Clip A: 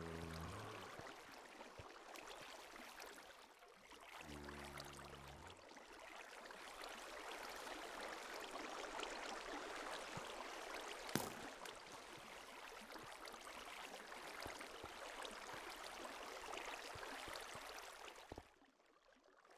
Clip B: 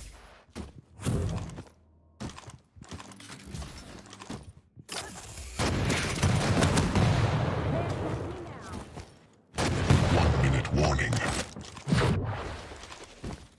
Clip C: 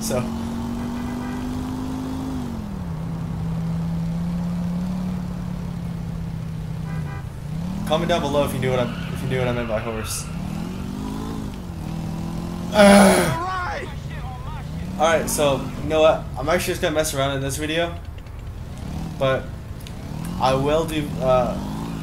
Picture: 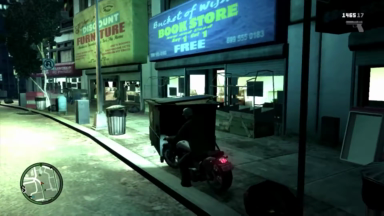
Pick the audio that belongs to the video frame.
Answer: C